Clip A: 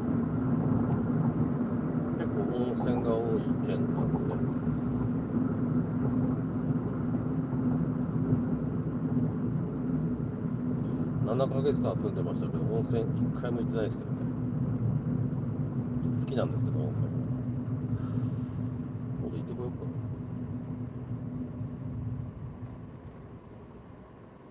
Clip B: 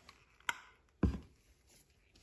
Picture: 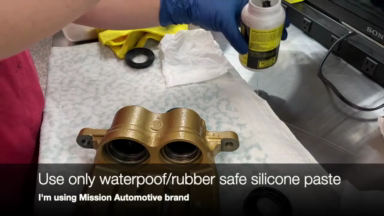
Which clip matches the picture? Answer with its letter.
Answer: B